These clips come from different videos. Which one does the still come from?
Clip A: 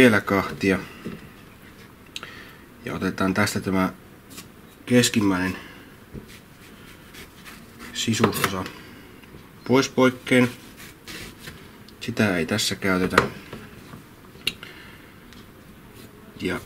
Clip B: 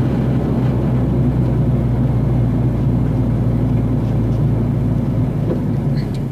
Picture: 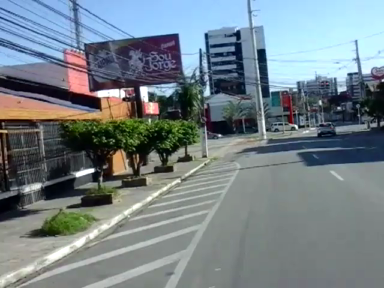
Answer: B